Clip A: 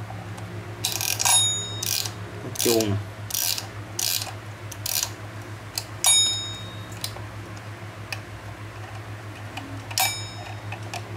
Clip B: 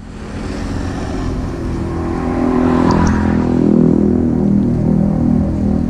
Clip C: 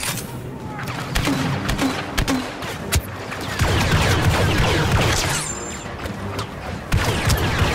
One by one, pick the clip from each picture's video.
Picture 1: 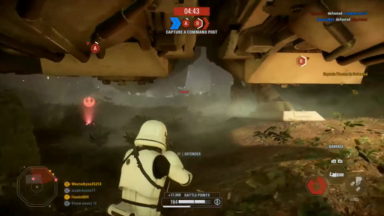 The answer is C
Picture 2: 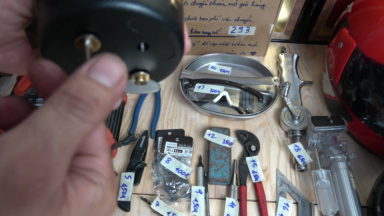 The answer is A